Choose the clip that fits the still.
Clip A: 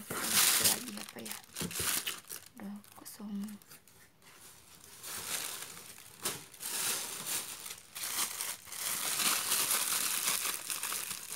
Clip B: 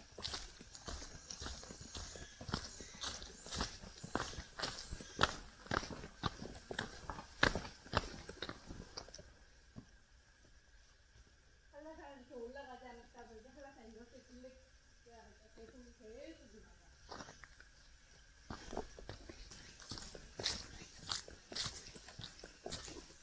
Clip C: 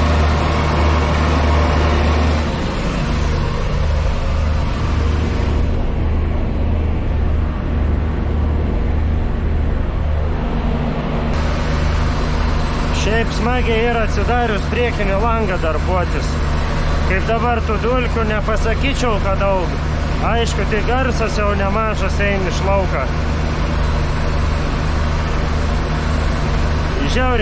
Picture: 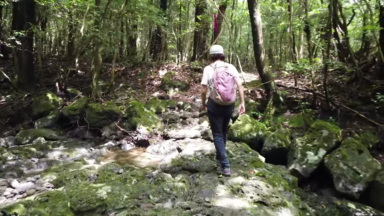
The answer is B